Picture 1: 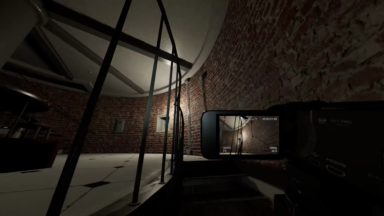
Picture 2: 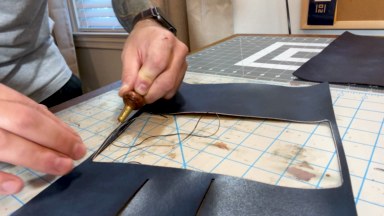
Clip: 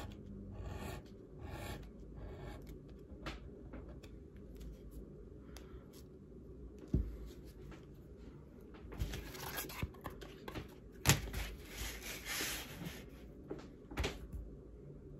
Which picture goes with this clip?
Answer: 2